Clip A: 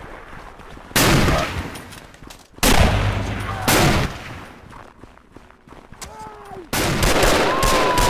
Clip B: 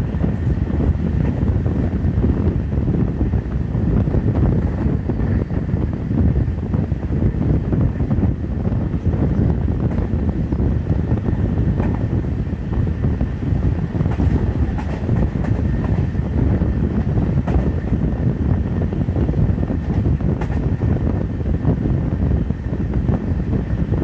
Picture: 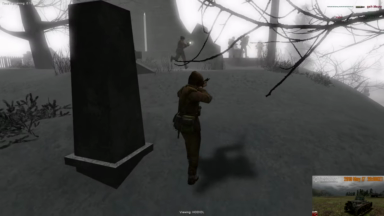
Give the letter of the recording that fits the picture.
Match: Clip A